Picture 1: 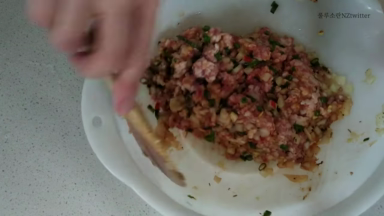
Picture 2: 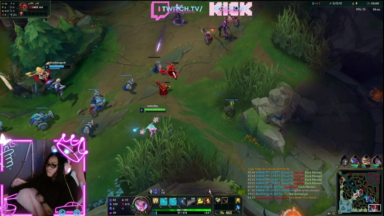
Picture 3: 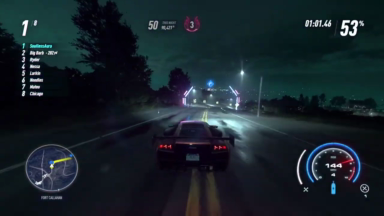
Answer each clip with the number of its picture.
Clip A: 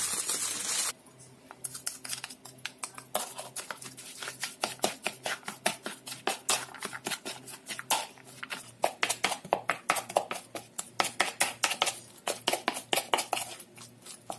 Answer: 1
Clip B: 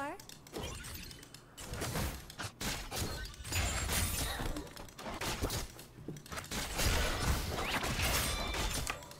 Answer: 2